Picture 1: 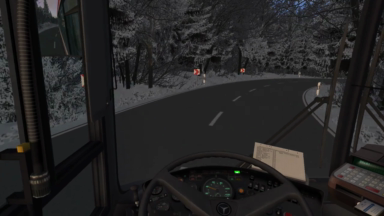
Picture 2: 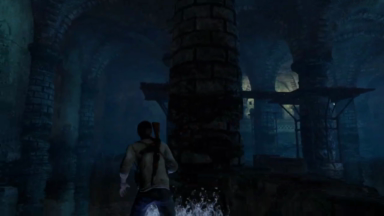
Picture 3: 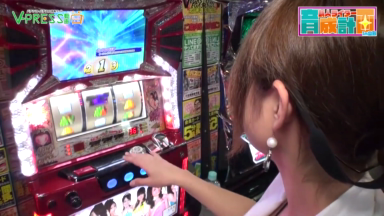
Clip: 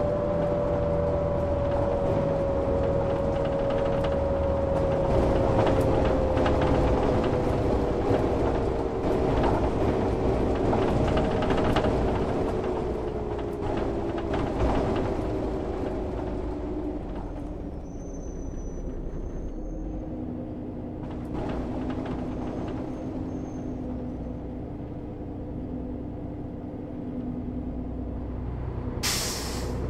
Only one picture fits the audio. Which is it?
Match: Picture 1